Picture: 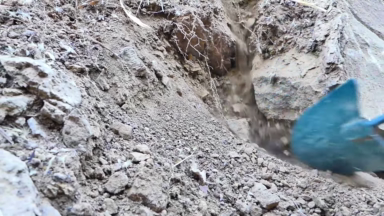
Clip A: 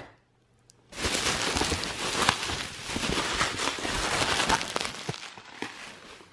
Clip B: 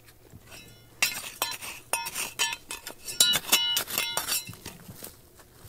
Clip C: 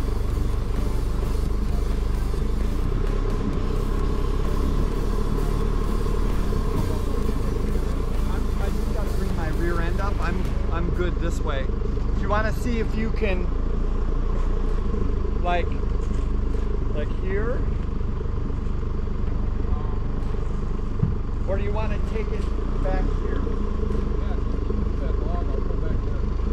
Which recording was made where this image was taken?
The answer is B